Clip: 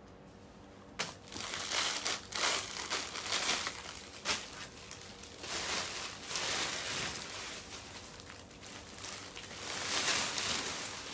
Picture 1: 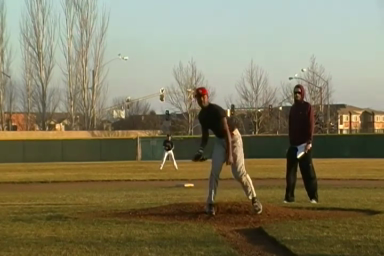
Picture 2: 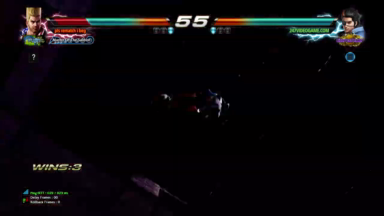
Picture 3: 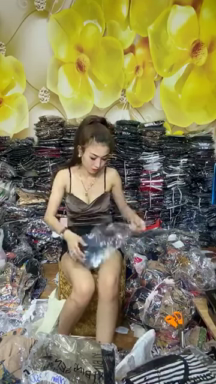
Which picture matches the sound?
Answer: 3